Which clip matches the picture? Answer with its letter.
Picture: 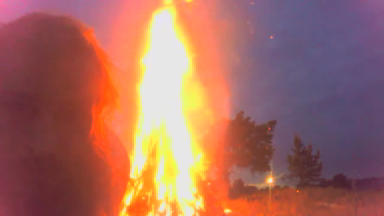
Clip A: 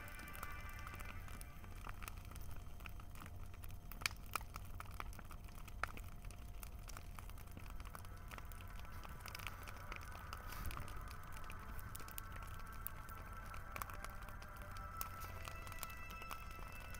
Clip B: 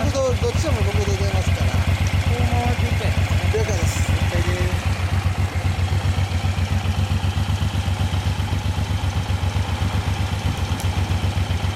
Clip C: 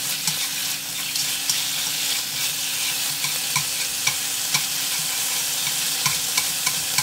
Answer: A